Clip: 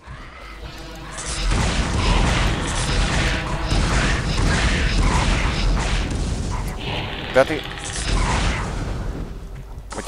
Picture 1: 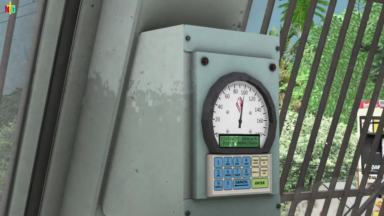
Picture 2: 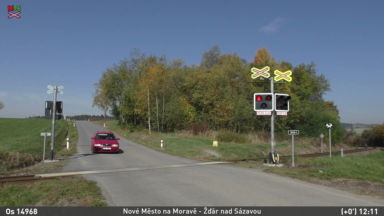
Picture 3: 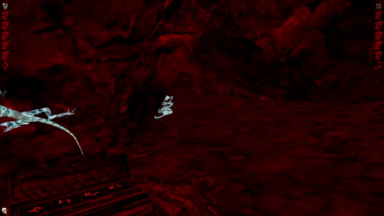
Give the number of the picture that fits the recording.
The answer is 3